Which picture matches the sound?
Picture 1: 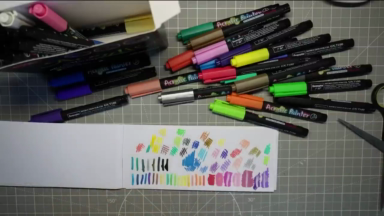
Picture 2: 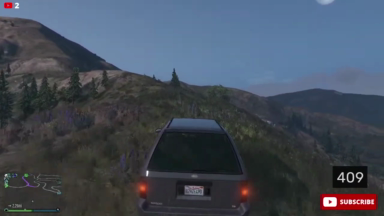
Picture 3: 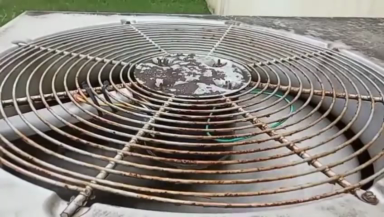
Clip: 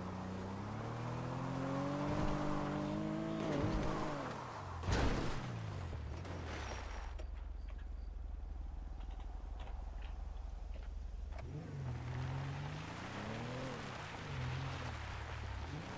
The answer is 2